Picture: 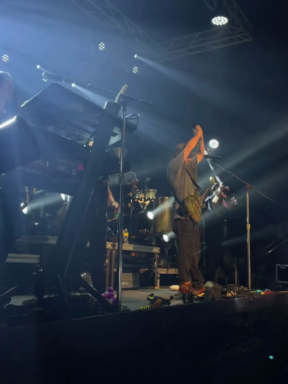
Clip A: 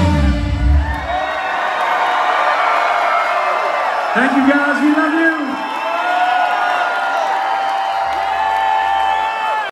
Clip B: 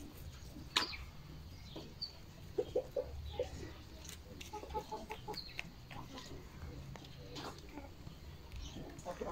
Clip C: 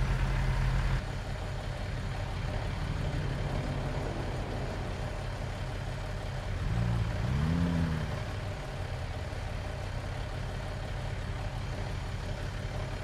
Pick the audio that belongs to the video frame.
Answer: A